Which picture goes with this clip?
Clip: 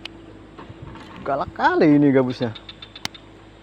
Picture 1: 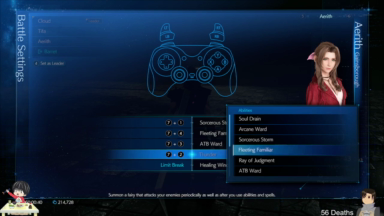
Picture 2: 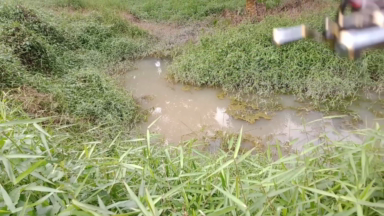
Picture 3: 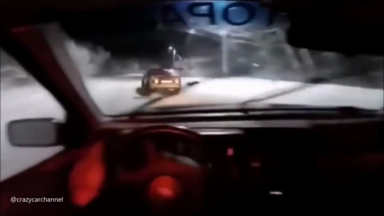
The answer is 2